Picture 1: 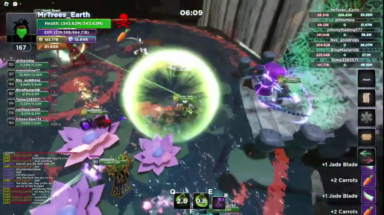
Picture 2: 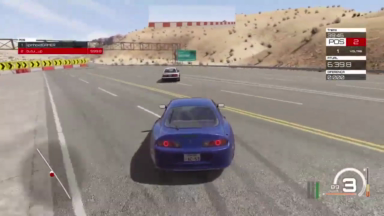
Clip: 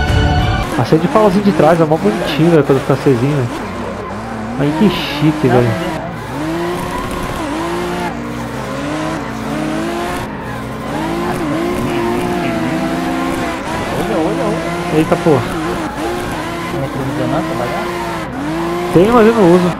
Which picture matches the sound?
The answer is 2